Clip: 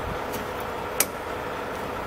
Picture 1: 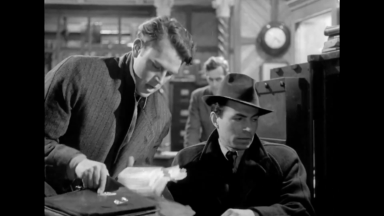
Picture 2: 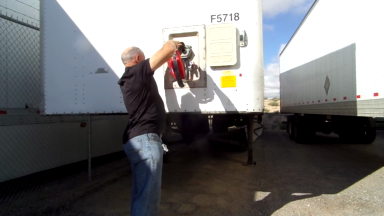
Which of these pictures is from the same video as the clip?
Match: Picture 2